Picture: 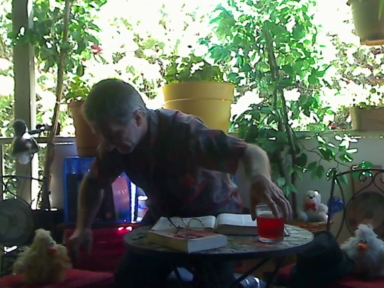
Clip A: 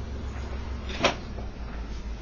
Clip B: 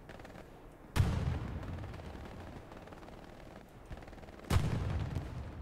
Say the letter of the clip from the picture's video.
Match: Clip A